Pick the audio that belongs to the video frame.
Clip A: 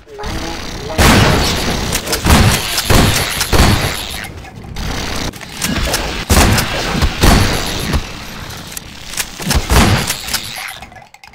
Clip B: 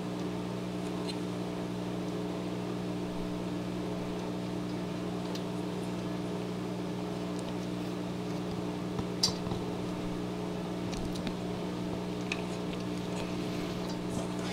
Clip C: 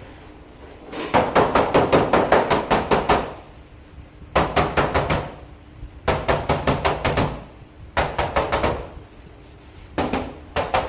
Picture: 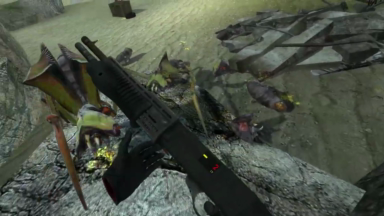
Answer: A